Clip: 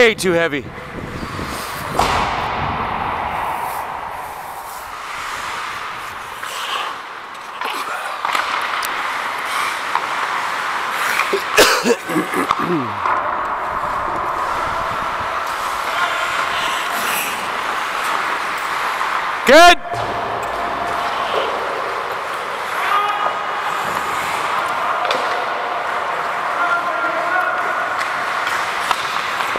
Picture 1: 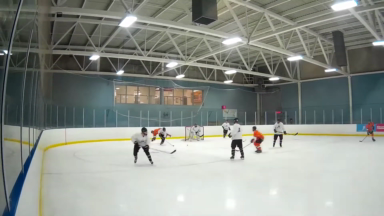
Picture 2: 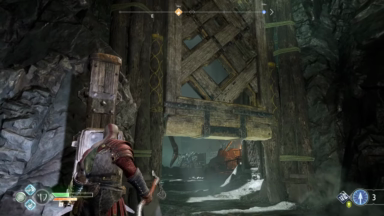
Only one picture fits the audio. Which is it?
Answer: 1